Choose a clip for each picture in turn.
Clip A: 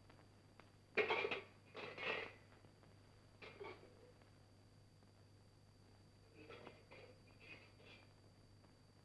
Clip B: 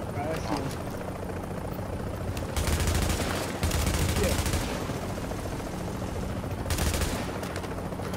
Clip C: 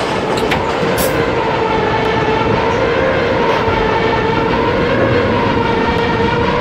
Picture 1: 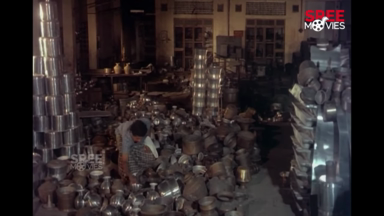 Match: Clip A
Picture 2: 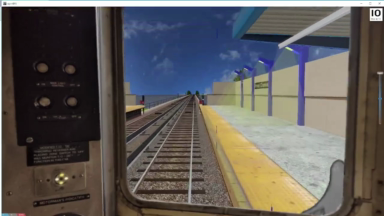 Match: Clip C